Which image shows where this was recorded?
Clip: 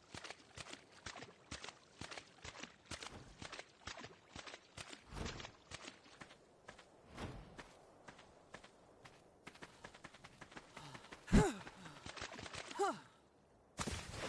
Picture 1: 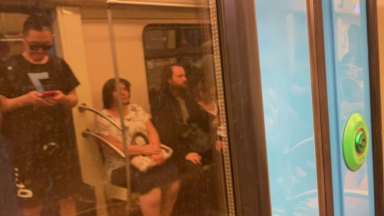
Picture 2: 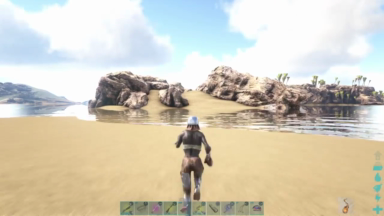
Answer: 2